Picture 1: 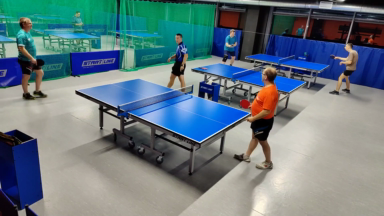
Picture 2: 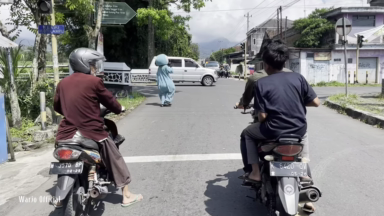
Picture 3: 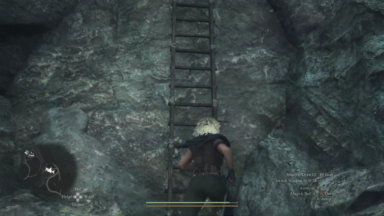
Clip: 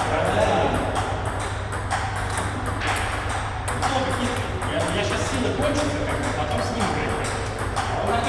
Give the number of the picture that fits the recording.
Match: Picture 1